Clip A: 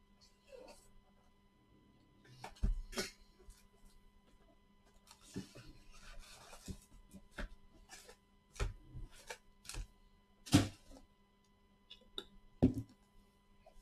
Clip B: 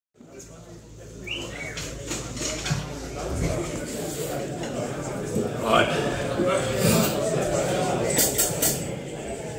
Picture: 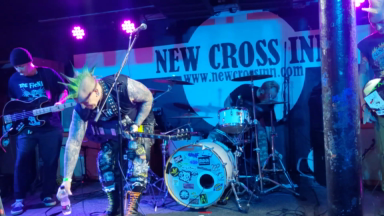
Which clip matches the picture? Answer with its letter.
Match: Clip B